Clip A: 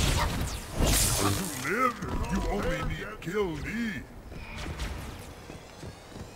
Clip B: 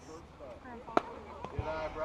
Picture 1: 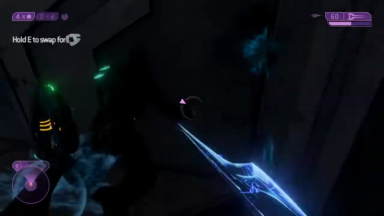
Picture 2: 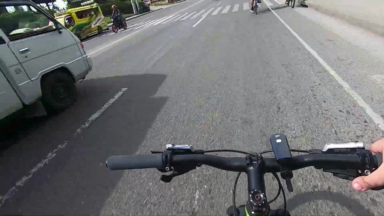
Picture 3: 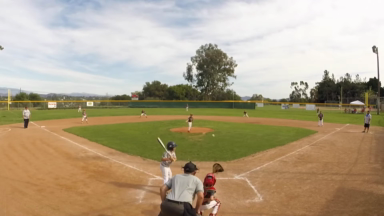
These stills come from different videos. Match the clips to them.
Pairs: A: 1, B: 3